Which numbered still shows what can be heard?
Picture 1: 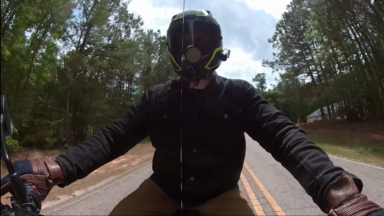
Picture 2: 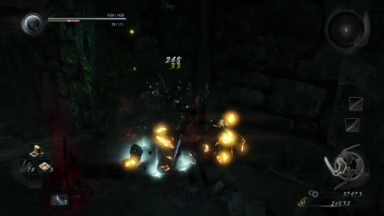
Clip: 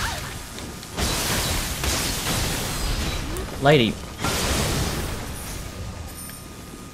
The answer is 2